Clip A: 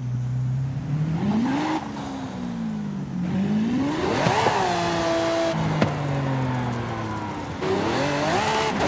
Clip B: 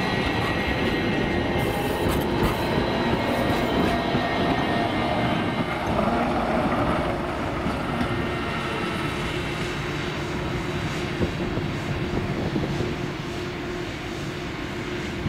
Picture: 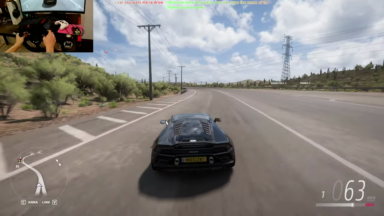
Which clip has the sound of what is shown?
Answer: A